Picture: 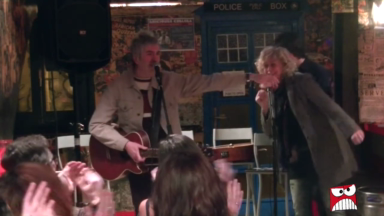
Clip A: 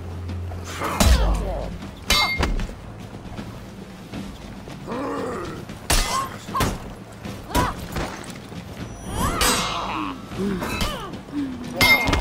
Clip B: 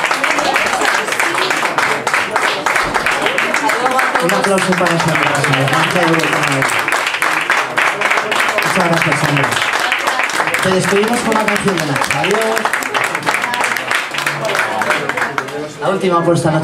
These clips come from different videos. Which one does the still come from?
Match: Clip B